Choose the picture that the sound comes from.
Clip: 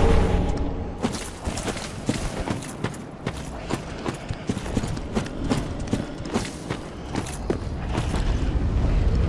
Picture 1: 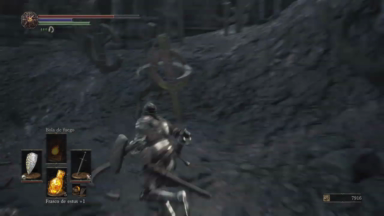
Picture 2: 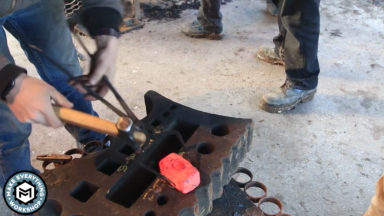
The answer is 1